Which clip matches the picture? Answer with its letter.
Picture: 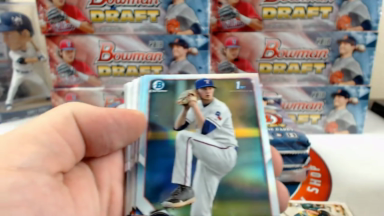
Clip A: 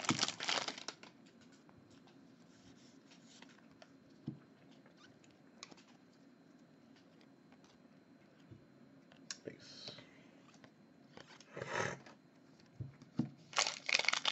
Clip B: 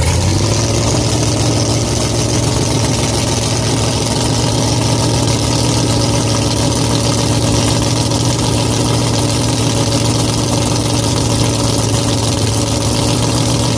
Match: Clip A